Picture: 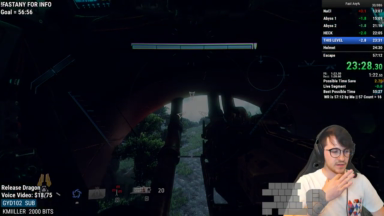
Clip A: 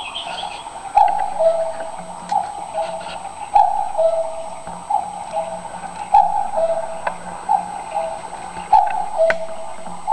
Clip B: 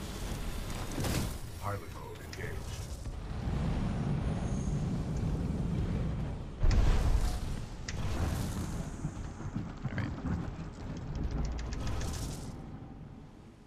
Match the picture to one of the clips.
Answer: B